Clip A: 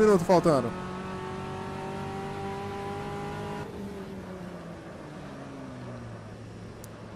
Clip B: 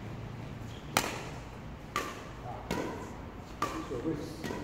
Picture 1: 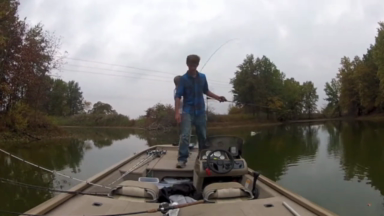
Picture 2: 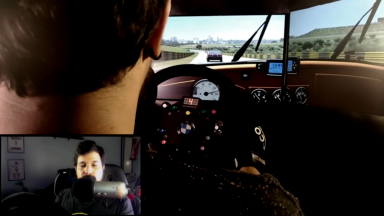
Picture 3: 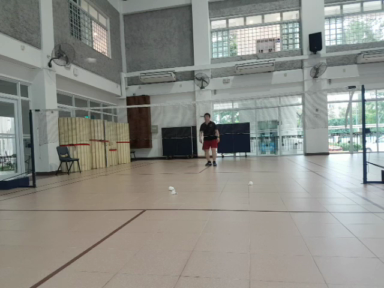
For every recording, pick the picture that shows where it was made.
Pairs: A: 2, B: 3